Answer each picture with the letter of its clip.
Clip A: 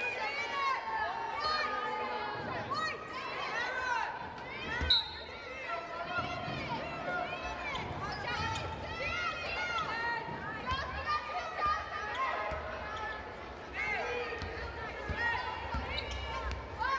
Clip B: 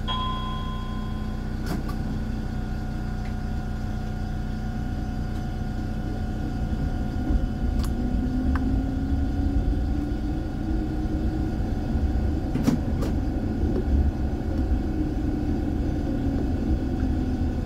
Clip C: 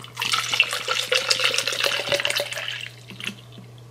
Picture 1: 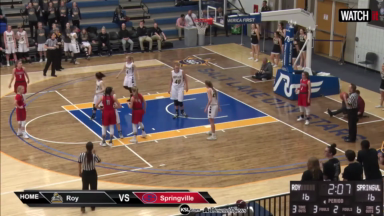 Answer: A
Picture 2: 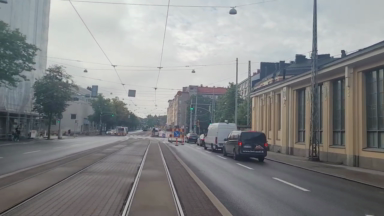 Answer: B